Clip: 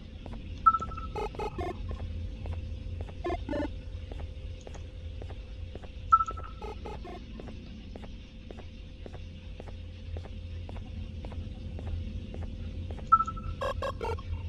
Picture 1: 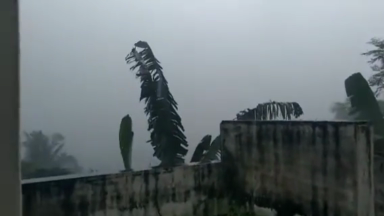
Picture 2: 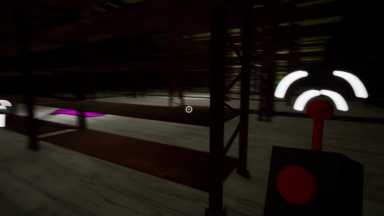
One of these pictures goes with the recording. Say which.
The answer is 2